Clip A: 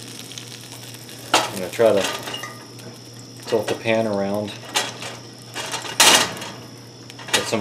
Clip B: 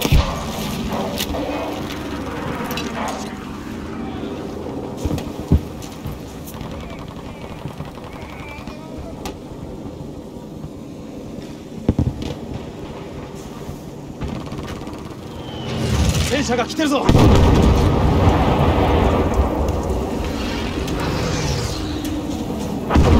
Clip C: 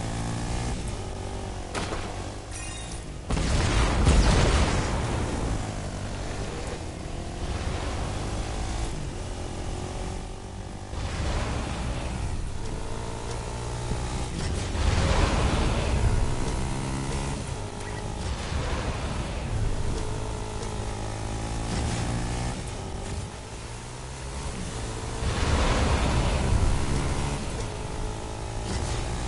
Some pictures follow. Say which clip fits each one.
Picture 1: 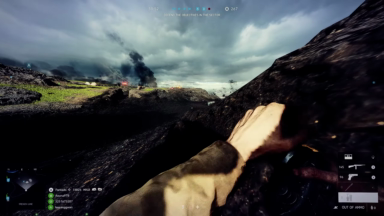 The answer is B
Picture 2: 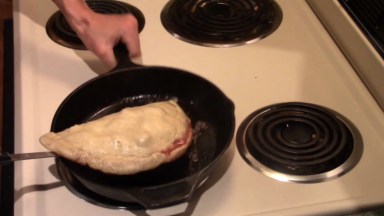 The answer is A